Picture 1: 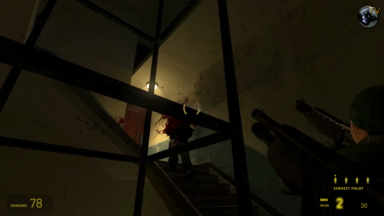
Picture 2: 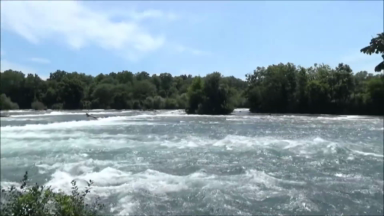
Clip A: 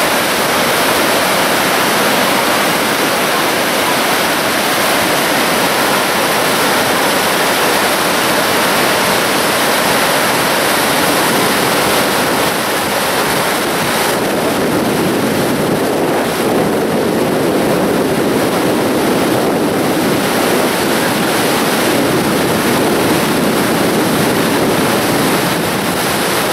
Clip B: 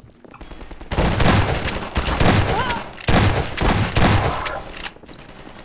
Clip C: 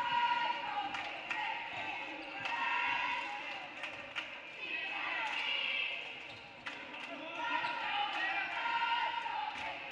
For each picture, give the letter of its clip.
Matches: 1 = B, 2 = A